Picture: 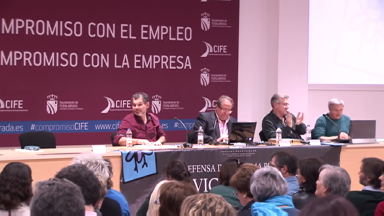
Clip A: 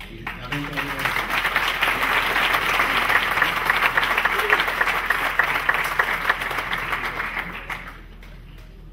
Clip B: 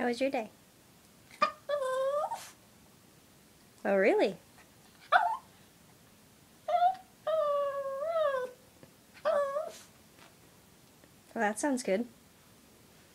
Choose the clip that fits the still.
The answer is A